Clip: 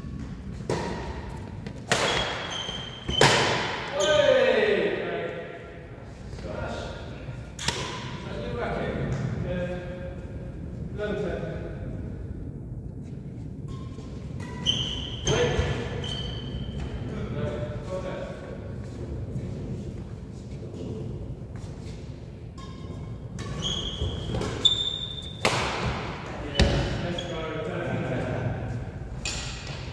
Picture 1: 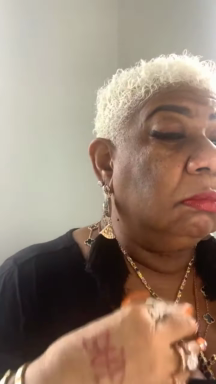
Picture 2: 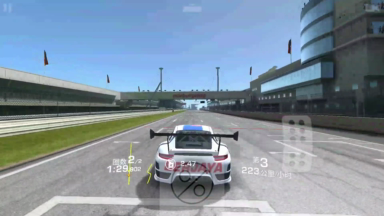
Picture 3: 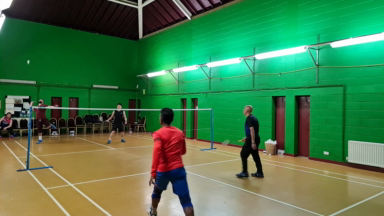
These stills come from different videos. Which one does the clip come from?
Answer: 3